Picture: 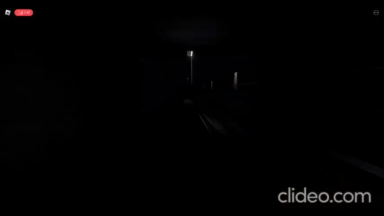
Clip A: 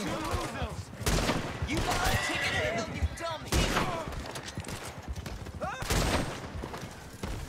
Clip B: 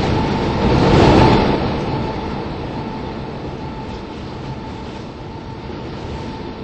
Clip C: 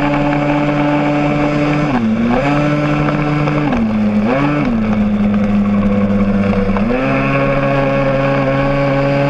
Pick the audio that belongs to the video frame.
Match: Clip B